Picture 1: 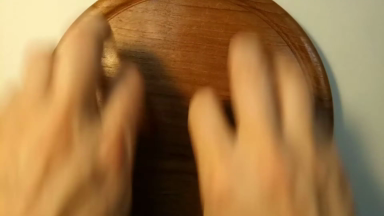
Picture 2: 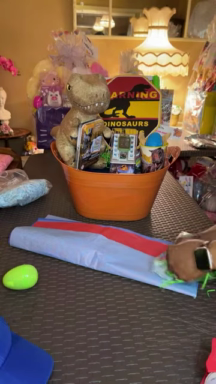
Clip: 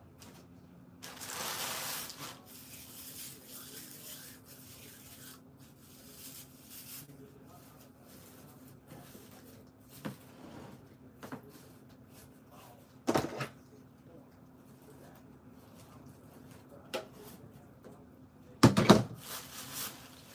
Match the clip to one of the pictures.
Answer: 2